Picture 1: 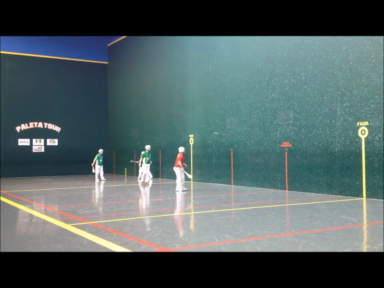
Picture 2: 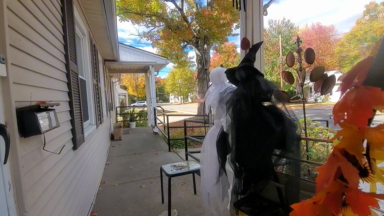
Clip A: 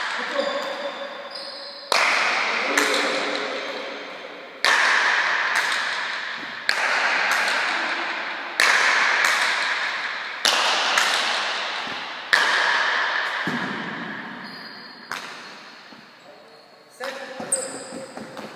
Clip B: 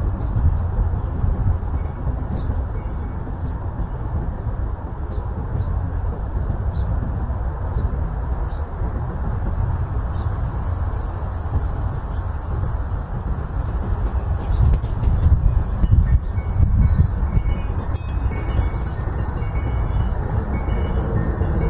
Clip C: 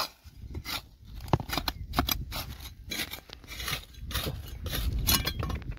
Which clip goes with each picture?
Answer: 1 A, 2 B